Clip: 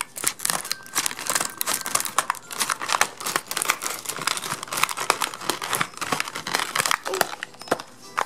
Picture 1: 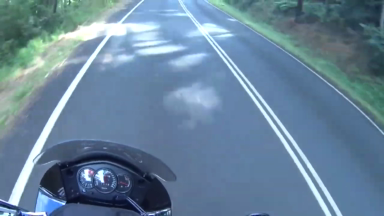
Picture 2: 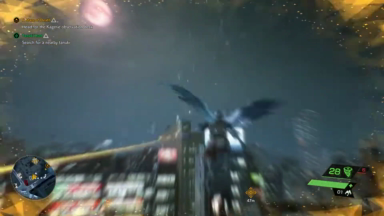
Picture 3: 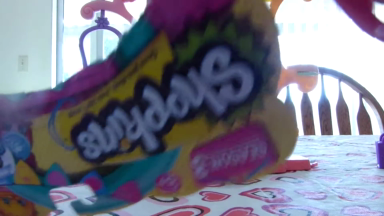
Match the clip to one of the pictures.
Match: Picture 3